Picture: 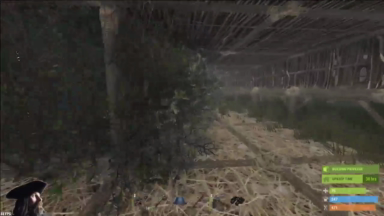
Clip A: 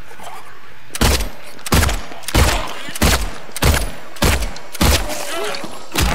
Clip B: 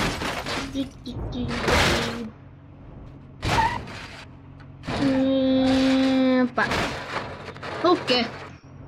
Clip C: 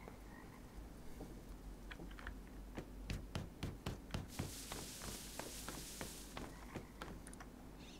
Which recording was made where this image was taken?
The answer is C